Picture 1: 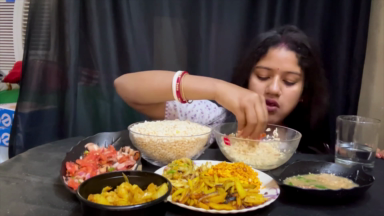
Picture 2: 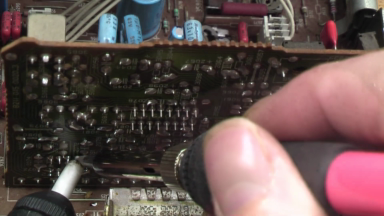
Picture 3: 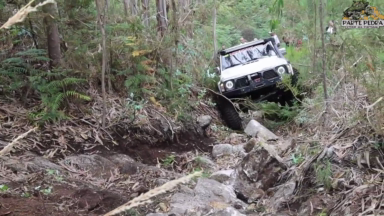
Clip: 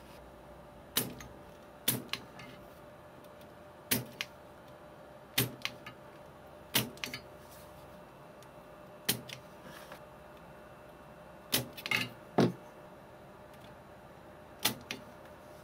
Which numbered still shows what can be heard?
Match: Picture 2